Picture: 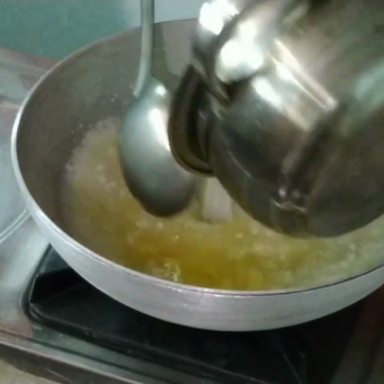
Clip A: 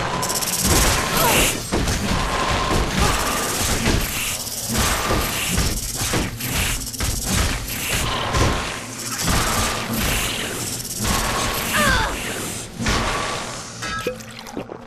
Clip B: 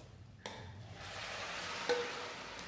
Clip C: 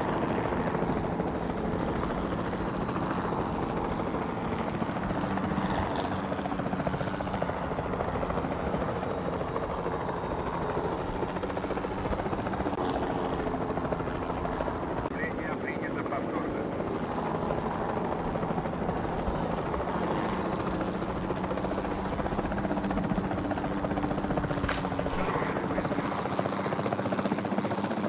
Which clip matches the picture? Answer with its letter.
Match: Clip B